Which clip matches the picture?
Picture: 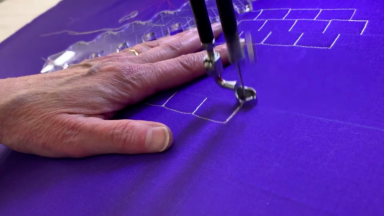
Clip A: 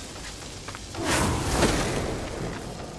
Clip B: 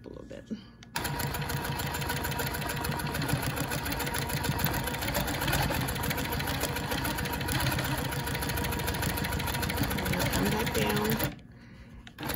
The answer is B